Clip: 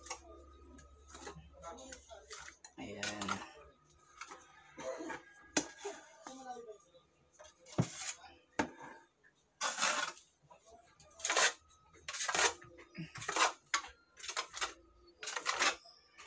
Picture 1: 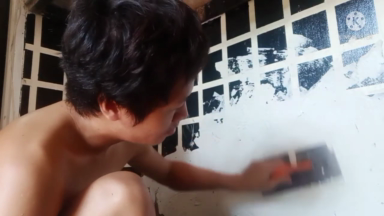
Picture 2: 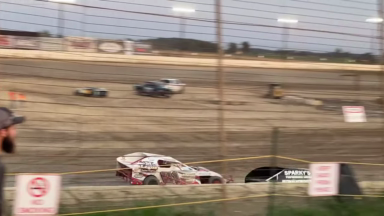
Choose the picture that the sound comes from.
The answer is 1